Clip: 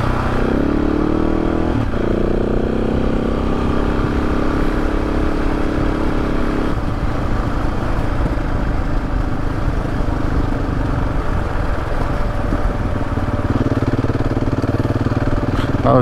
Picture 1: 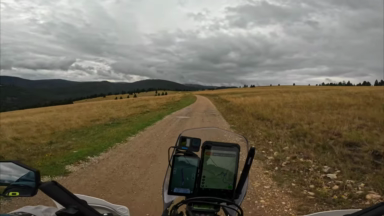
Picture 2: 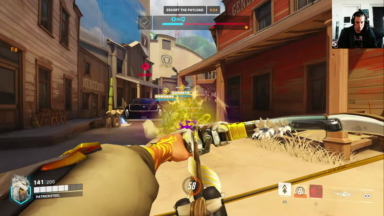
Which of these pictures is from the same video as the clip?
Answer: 1